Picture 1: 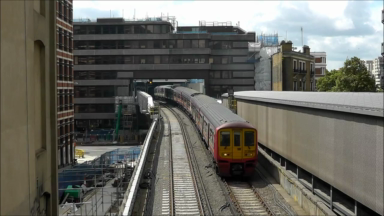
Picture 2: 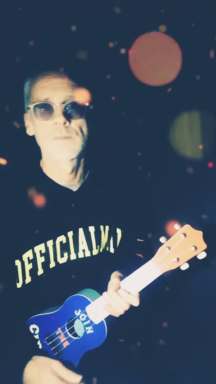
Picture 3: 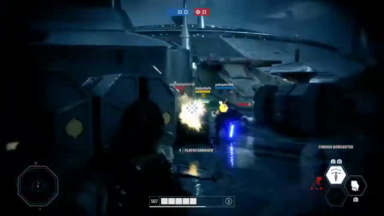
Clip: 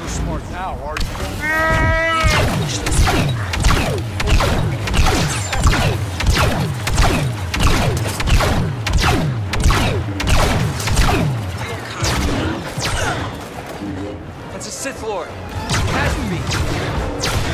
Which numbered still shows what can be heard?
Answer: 3